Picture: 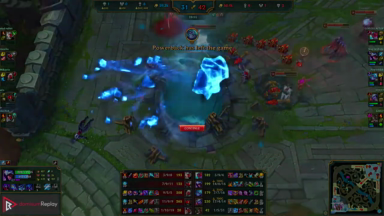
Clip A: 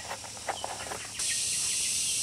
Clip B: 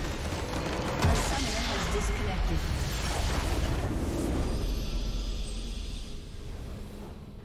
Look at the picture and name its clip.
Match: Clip B